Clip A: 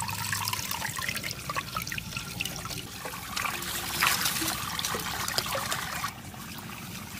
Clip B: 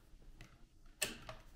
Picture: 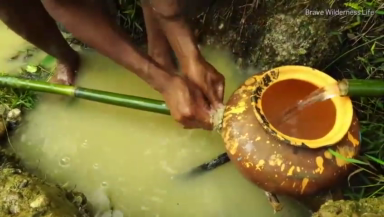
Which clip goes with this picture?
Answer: A